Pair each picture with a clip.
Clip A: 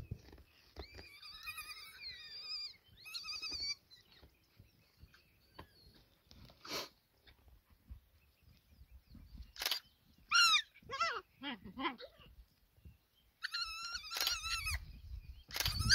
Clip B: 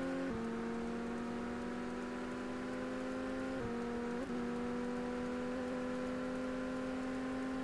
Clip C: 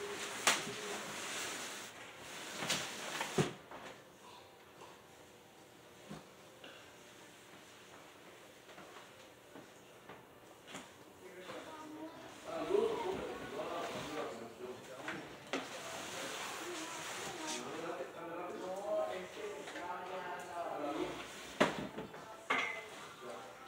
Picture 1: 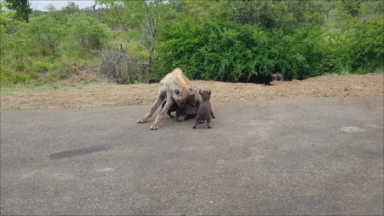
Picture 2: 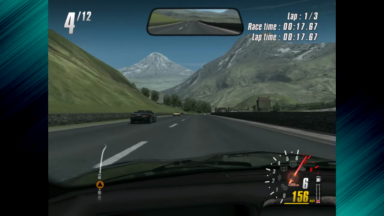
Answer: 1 A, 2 B